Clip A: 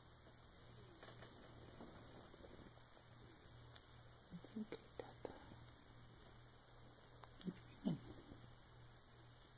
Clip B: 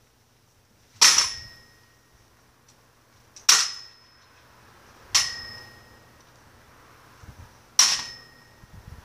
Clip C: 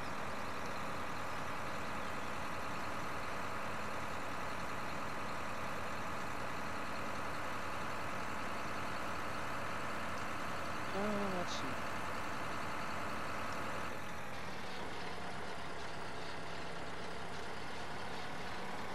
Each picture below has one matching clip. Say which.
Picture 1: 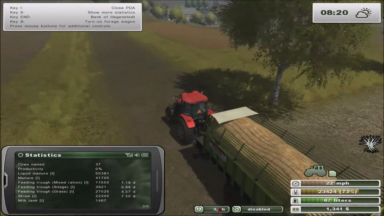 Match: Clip C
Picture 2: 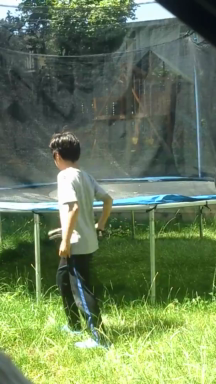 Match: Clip B